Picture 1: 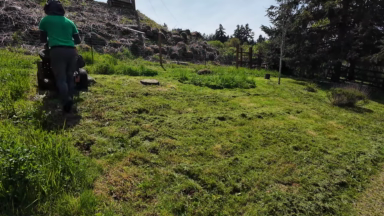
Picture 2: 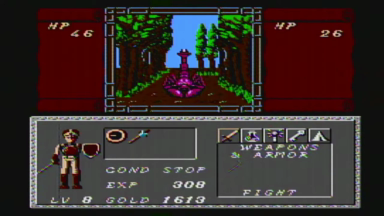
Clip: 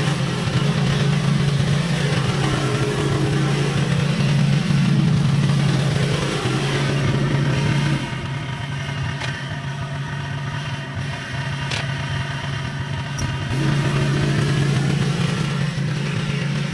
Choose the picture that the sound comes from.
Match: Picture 1